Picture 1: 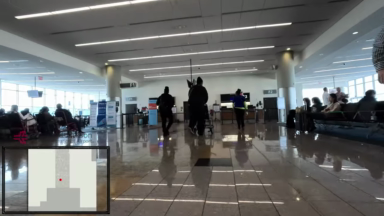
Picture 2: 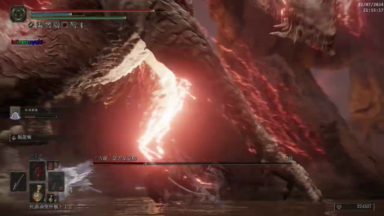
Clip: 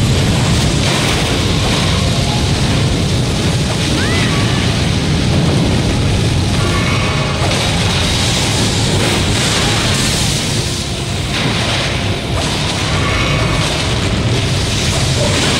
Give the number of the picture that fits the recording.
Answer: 2